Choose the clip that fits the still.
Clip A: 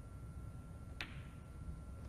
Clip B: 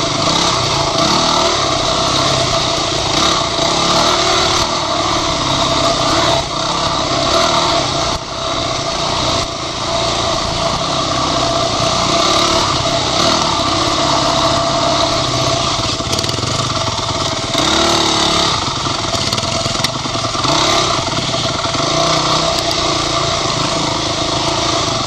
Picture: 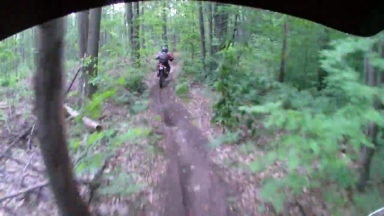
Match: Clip B